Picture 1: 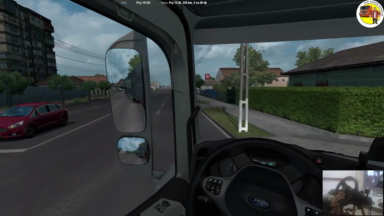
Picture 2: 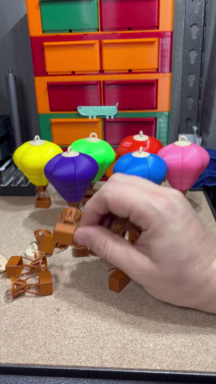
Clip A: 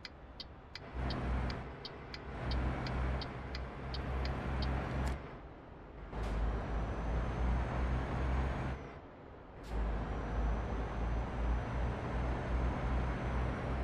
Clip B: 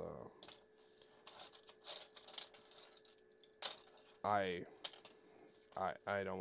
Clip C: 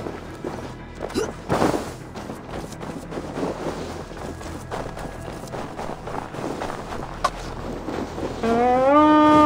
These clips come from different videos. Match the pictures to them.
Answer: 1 A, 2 B